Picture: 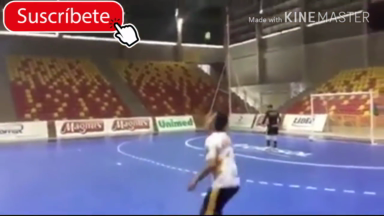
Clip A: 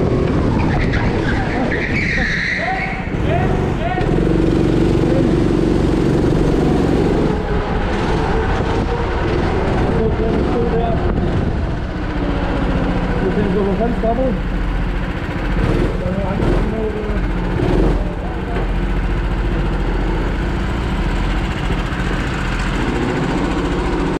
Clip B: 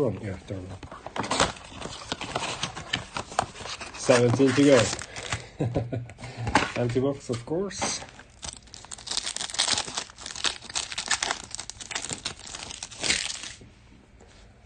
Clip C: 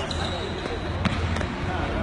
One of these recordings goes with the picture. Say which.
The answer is C